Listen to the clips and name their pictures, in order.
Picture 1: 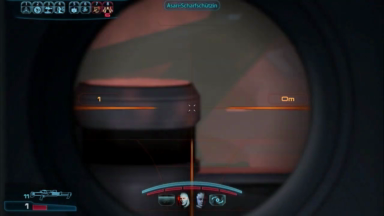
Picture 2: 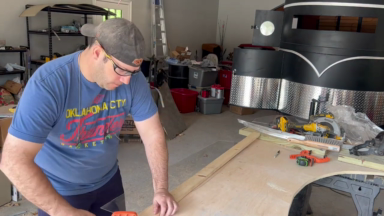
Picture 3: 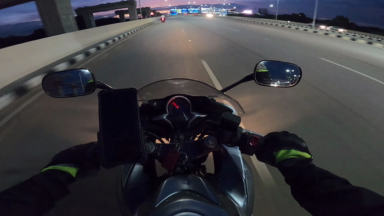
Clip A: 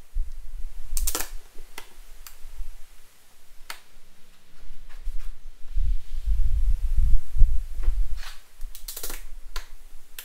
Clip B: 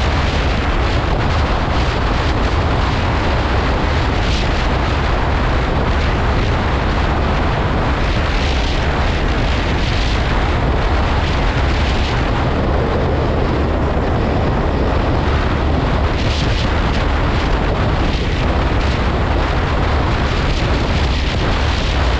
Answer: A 2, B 3